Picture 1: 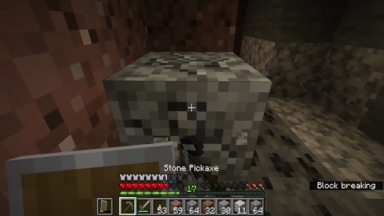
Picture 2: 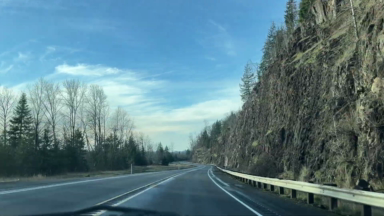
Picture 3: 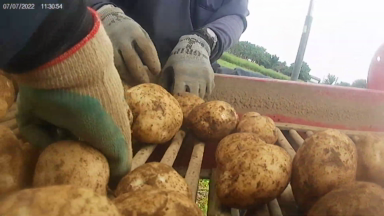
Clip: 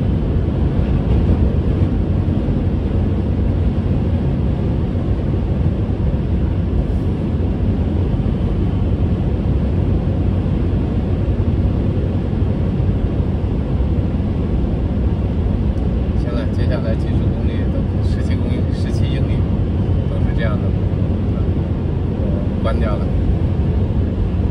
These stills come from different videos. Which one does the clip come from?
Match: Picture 2